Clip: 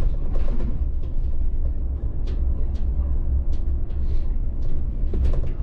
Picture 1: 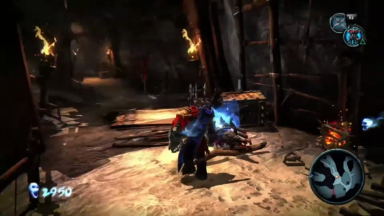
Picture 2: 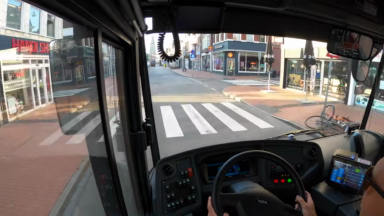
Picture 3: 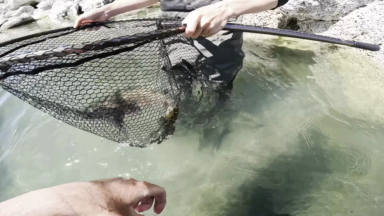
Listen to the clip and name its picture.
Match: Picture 2